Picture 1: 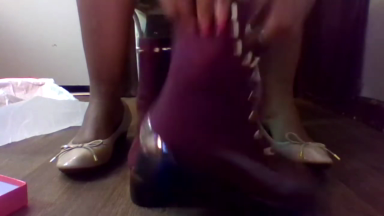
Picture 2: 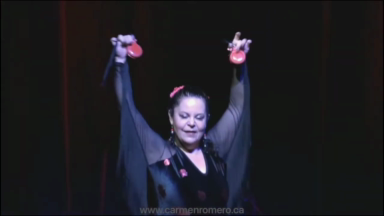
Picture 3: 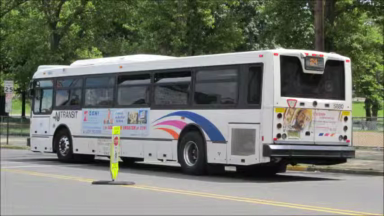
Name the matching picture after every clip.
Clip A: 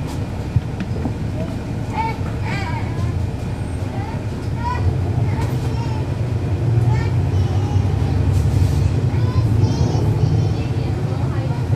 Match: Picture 3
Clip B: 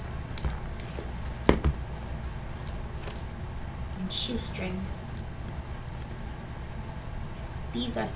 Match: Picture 1